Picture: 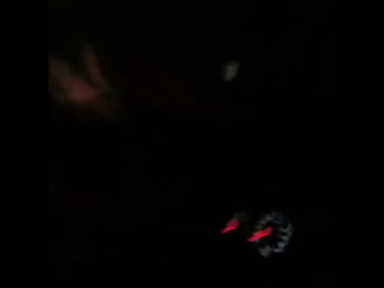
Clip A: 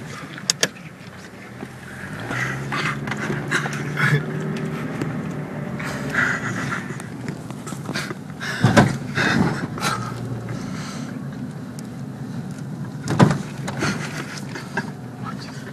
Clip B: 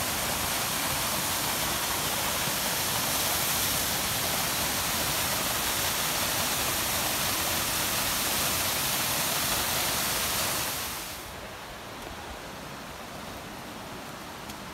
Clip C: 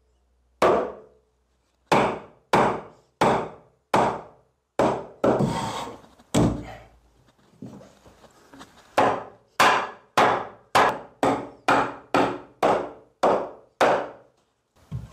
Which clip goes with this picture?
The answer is A